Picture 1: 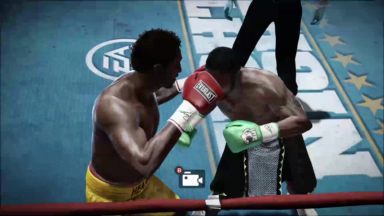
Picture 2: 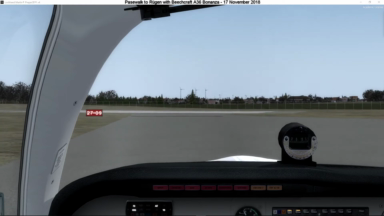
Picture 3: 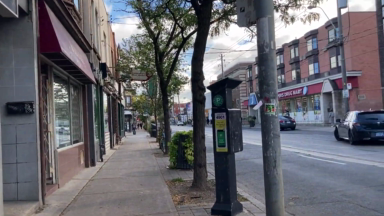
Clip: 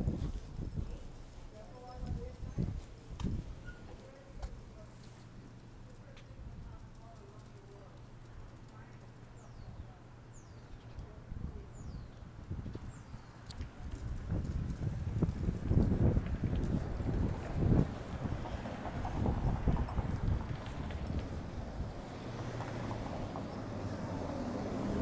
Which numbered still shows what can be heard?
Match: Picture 3